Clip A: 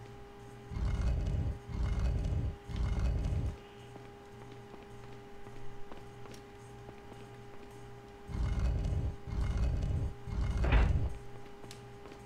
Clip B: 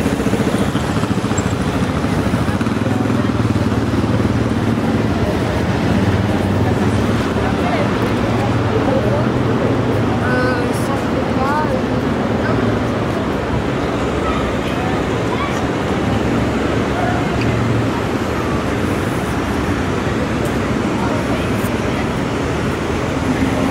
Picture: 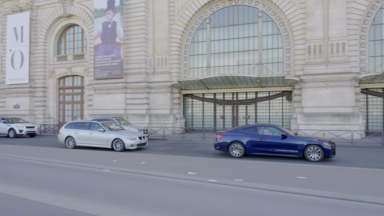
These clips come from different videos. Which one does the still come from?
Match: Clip B